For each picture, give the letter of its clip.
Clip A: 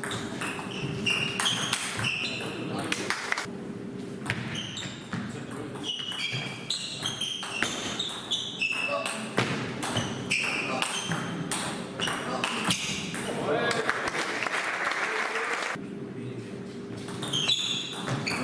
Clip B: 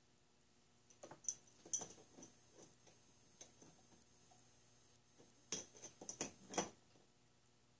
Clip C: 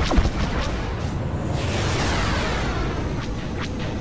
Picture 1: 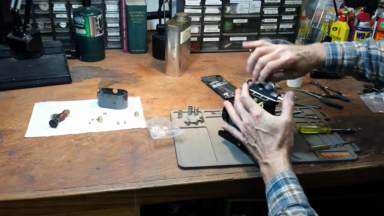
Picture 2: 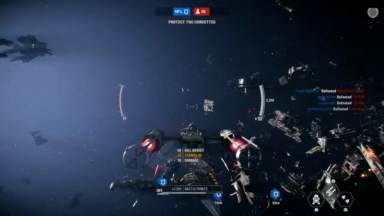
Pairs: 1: B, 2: C